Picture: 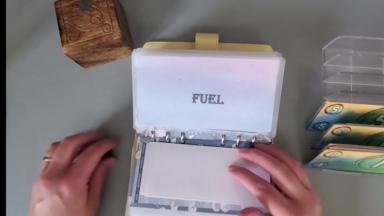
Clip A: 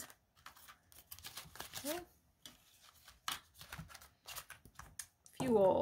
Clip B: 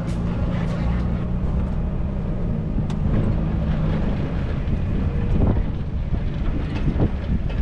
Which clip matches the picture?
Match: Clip A